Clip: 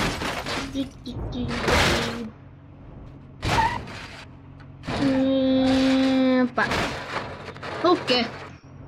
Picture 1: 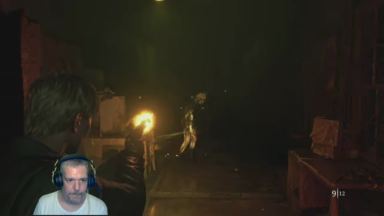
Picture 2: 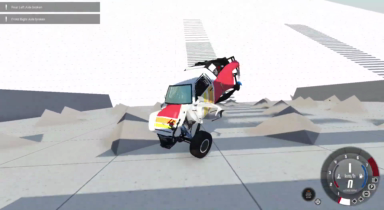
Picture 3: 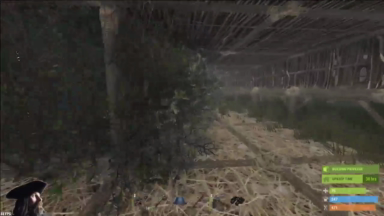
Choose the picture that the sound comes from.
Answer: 2